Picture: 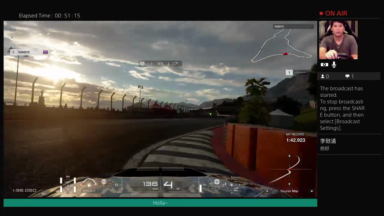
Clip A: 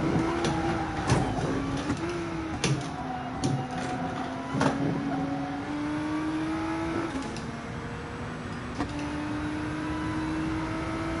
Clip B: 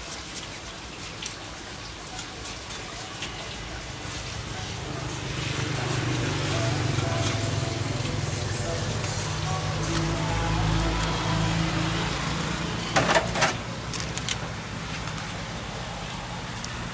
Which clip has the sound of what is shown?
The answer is A